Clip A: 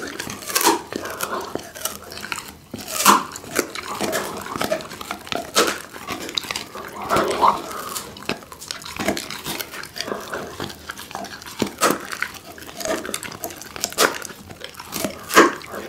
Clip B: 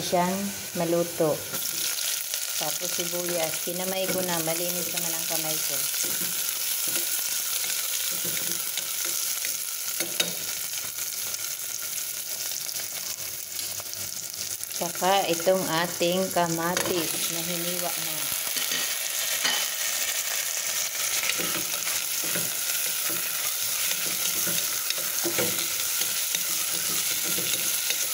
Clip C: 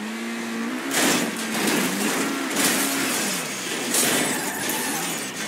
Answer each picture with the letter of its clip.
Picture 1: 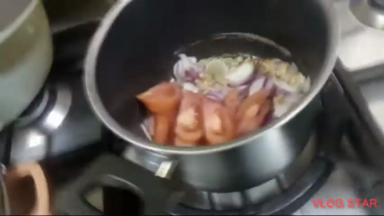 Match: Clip B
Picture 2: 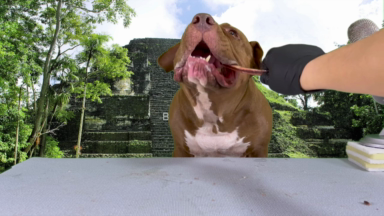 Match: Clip A